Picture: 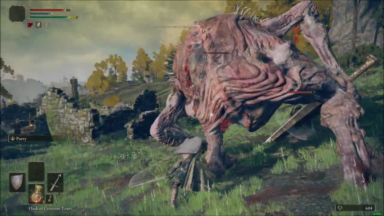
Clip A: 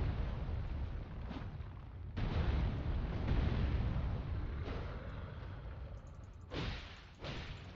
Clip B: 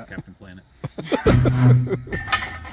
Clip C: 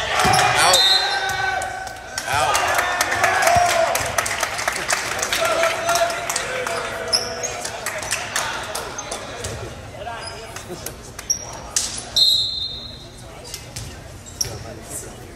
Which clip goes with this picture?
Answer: A